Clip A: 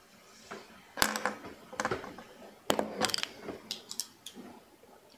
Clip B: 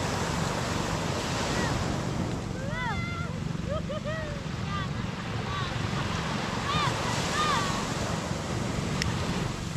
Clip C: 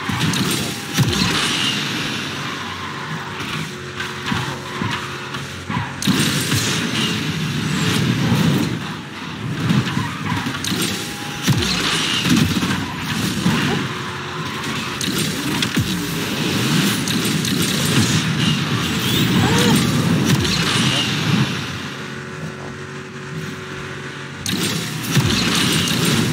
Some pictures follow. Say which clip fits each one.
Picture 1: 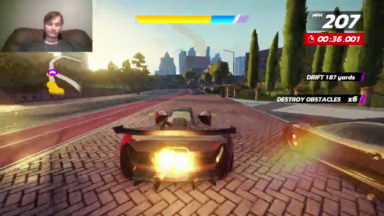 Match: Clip C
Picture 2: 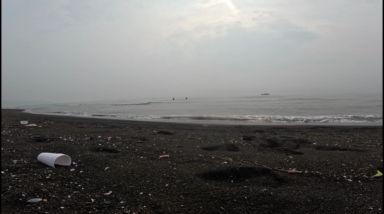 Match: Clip B